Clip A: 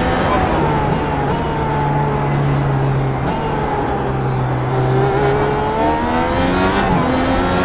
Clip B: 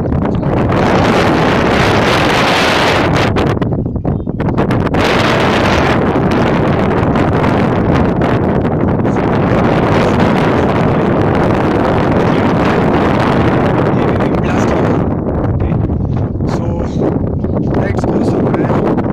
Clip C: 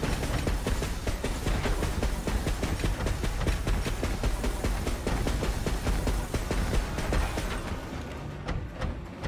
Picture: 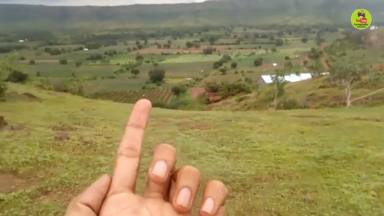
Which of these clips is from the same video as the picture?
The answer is B